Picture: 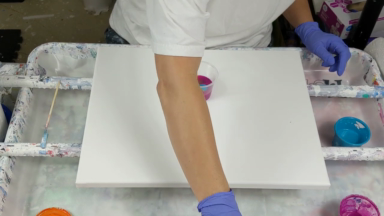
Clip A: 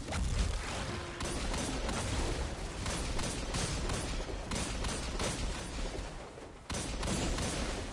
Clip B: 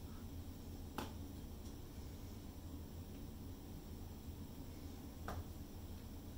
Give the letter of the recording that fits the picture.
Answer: B